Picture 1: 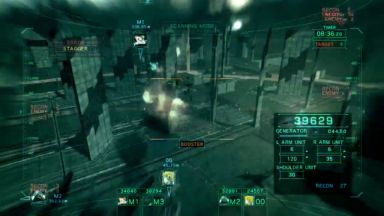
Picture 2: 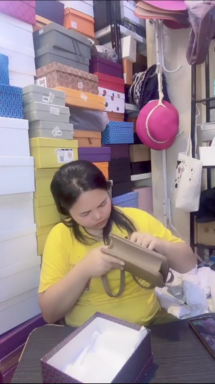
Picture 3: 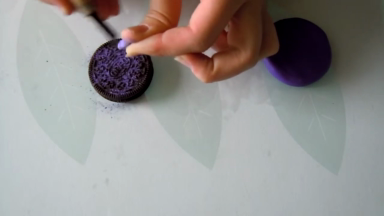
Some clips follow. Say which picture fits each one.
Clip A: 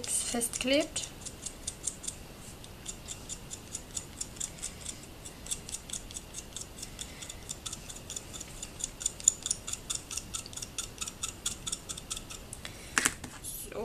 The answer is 3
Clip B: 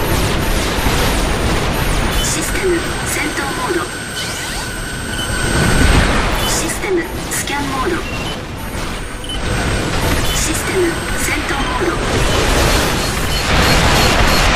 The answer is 1